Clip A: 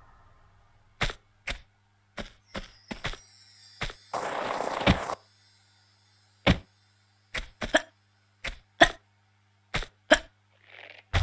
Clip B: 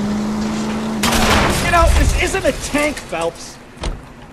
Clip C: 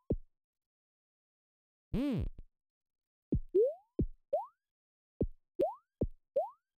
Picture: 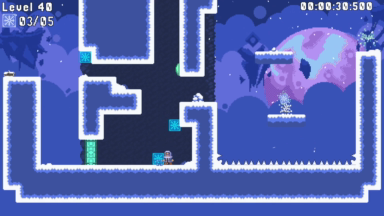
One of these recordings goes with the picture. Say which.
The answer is C